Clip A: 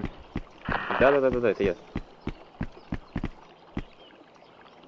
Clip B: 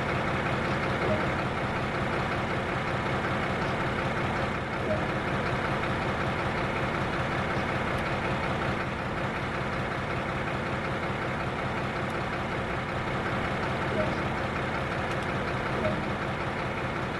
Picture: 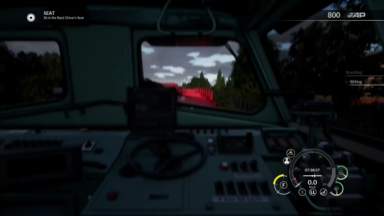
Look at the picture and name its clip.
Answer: B